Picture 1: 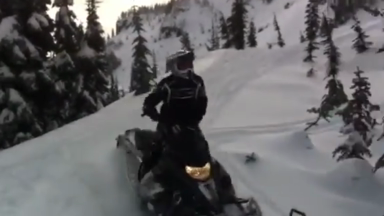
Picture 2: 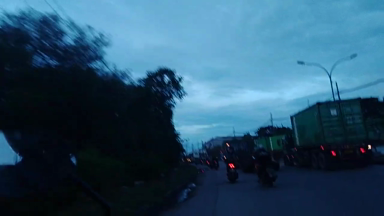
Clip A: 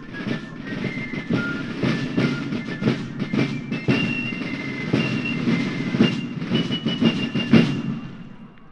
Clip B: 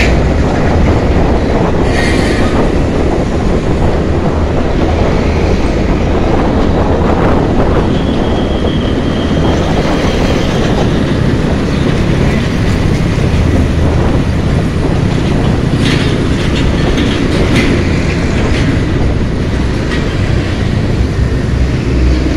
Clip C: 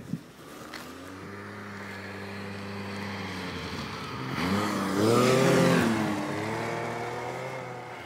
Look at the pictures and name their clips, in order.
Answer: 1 C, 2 B